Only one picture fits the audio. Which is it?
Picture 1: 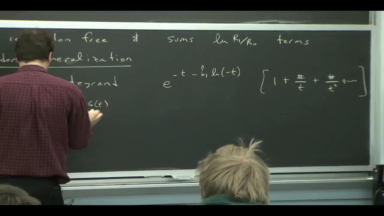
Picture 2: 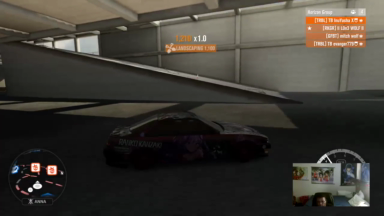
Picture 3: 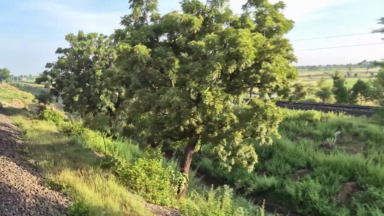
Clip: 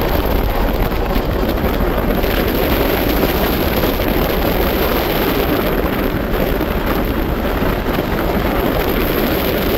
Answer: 3